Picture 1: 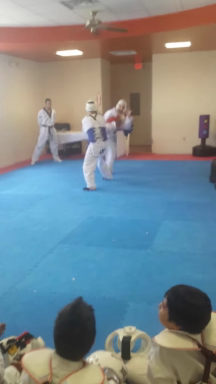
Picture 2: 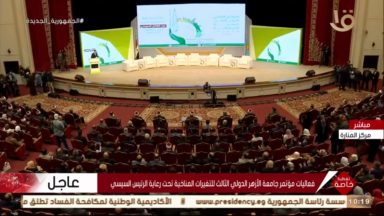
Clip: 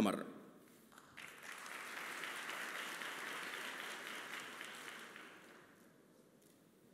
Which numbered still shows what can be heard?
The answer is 2